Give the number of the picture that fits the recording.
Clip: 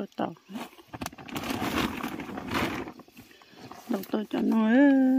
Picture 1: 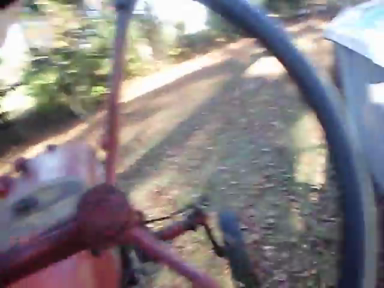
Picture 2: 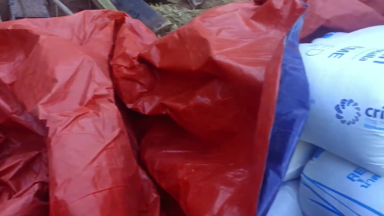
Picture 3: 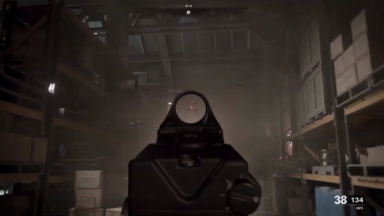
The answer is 2